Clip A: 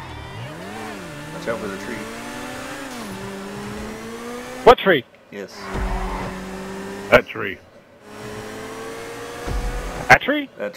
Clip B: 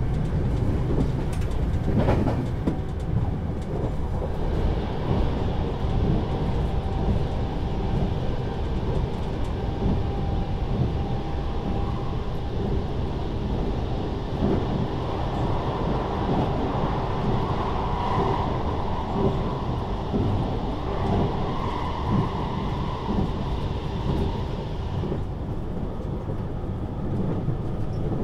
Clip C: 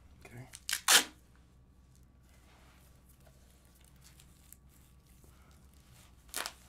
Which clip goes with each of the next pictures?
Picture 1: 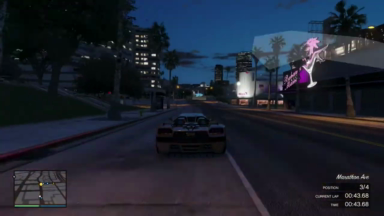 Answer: A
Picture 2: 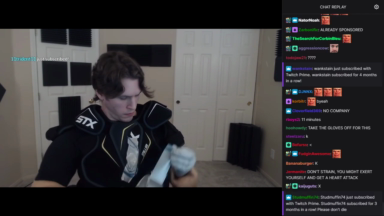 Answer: C